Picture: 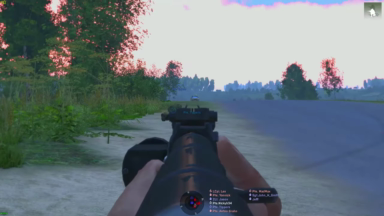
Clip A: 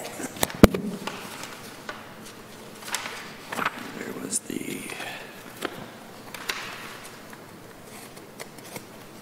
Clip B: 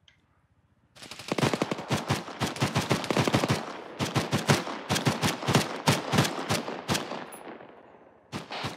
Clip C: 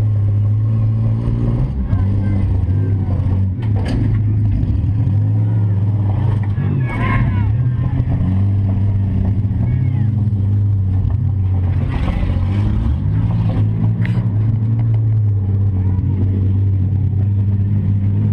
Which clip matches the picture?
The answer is B